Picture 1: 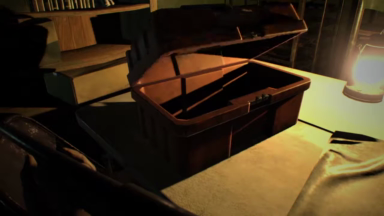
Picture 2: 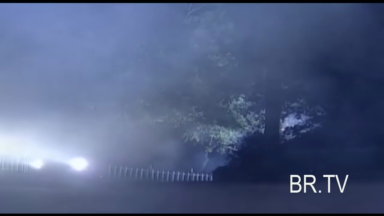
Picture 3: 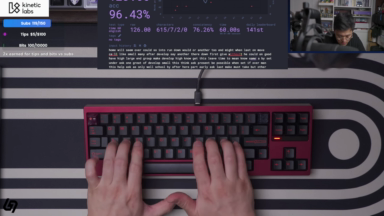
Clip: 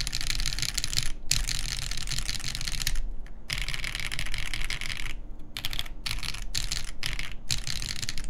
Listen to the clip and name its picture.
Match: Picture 3